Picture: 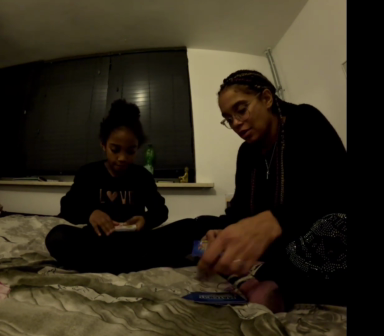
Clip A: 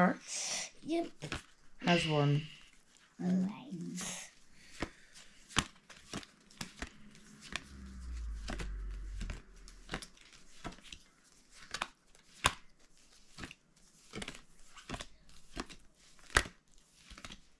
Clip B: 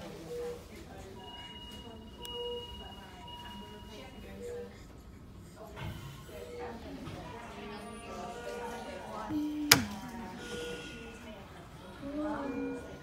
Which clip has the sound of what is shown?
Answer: A